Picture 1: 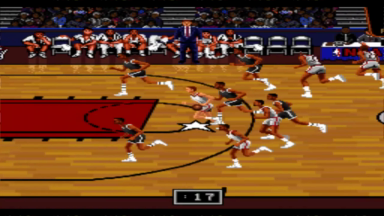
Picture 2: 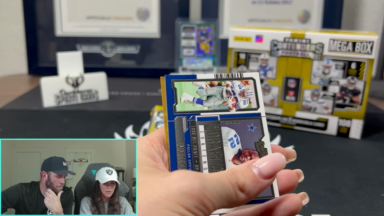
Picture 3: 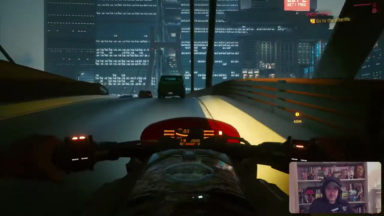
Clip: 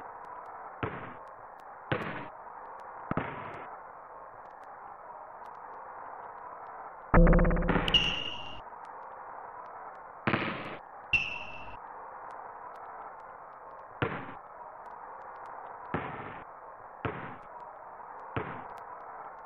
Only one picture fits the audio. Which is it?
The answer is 1